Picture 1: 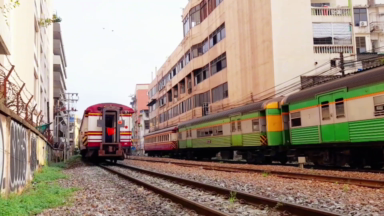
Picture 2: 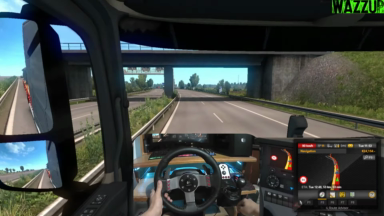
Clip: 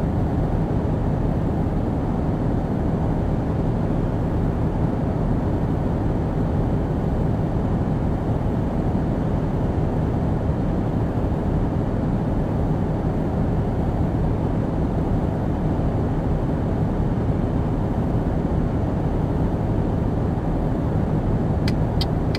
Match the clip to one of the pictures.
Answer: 2